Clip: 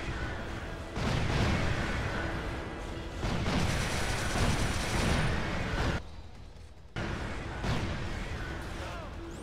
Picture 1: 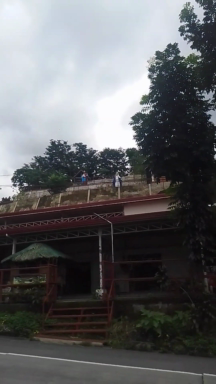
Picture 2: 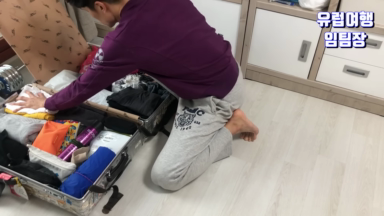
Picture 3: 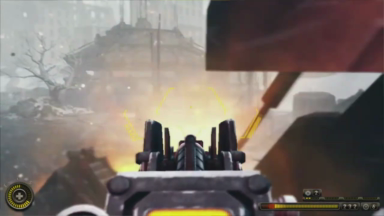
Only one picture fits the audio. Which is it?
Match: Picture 3